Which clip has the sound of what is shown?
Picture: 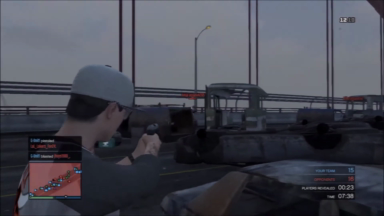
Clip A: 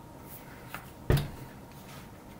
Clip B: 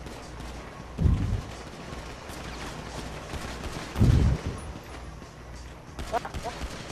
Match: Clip B